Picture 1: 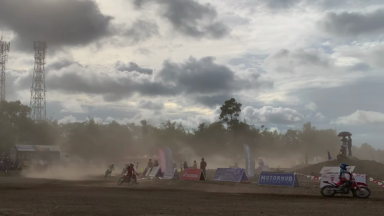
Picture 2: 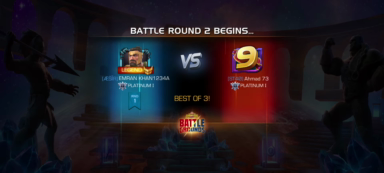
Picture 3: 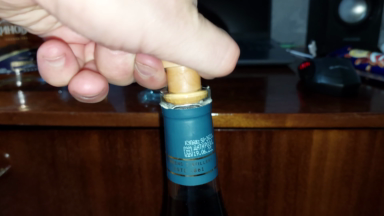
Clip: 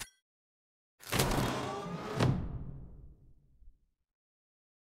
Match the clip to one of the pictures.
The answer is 2